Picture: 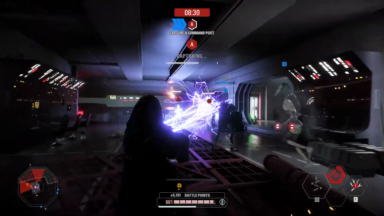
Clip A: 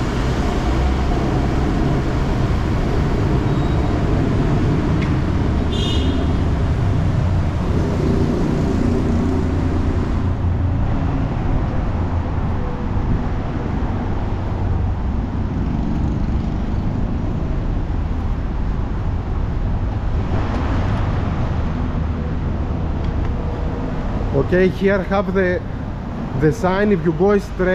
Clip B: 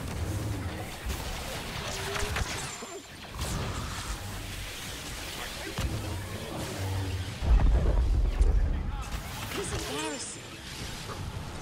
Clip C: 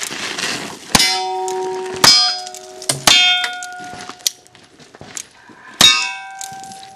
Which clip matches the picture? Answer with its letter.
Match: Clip B